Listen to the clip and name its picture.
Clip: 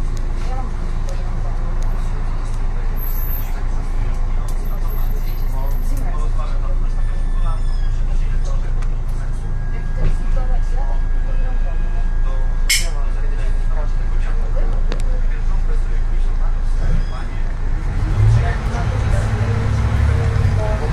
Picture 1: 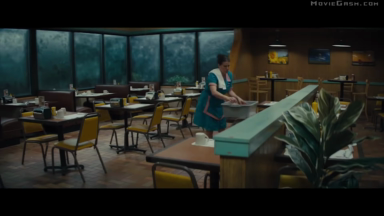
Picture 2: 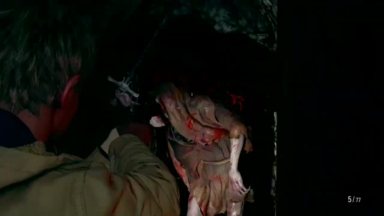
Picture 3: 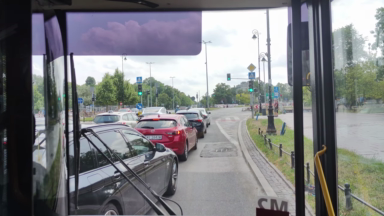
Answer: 3